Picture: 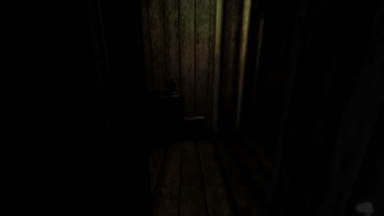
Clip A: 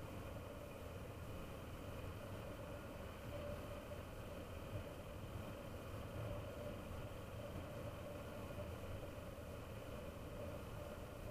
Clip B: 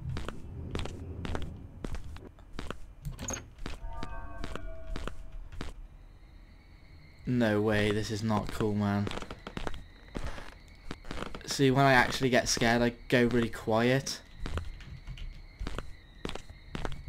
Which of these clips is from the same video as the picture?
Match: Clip B